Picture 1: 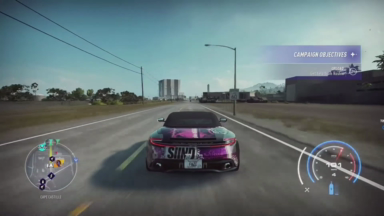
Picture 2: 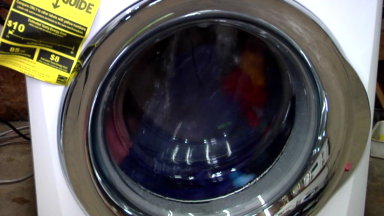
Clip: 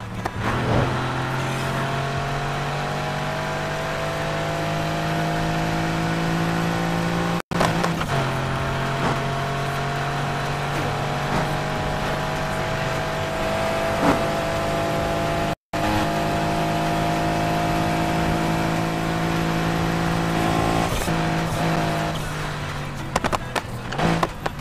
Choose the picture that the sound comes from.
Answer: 1